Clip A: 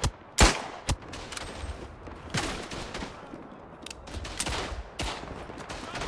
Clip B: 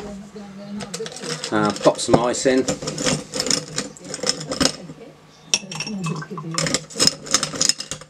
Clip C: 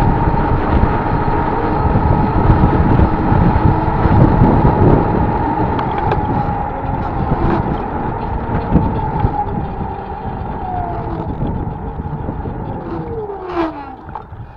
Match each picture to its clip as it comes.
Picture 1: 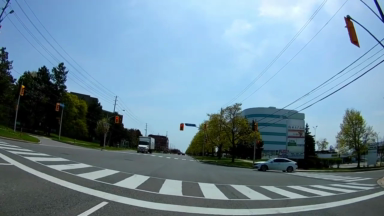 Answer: C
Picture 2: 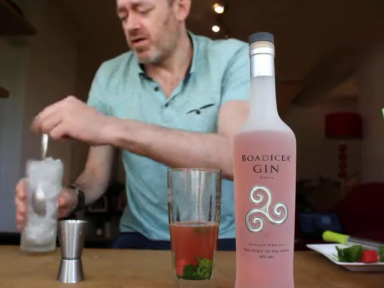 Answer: B